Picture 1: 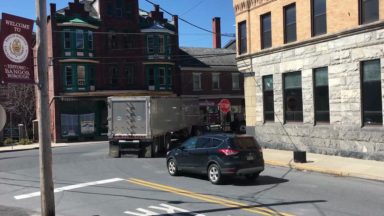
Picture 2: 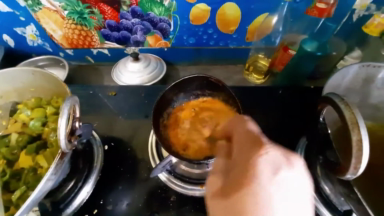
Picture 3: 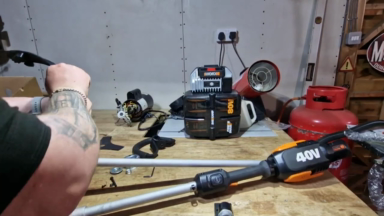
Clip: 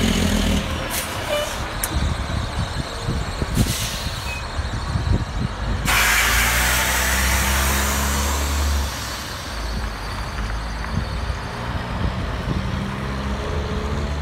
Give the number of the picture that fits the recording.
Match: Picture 1